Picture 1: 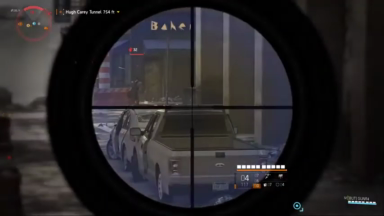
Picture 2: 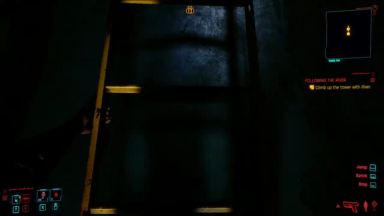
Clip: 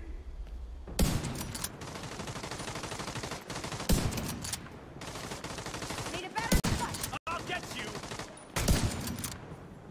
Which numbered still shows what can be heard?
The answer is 1